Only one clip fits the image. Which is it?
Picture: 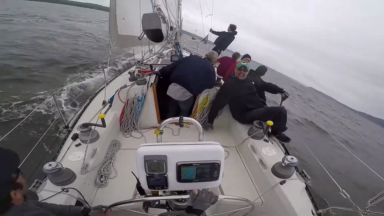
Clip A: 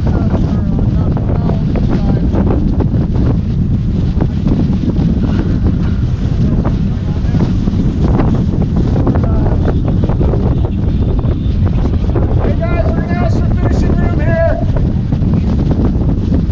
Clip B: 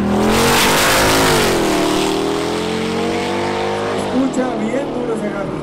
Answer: A